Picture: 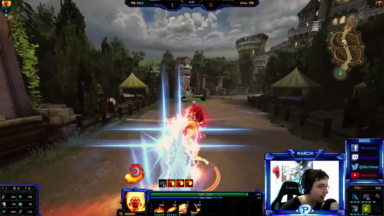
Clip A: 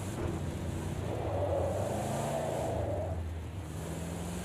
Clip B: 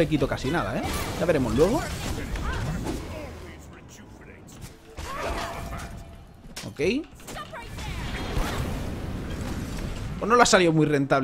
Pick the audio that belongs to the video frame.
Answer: B